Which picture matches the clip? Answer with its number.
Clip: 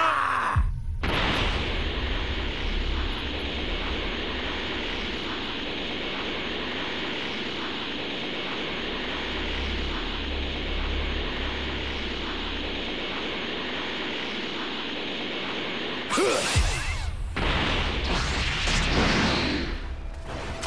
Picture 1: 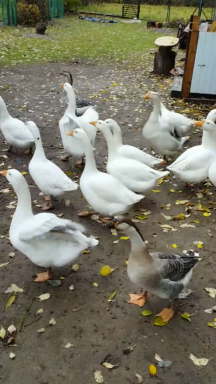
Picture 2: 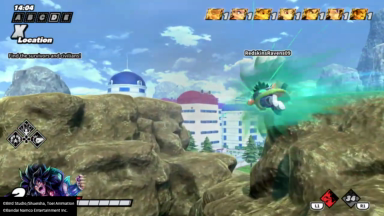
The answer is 2